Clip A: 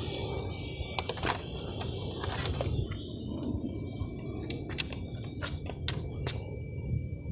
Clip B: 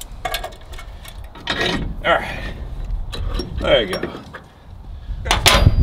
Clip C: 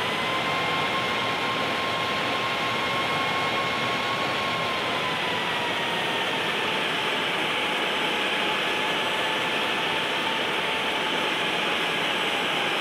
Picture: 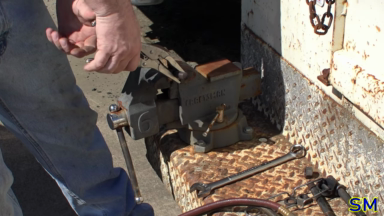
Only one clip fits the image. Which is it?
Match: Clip B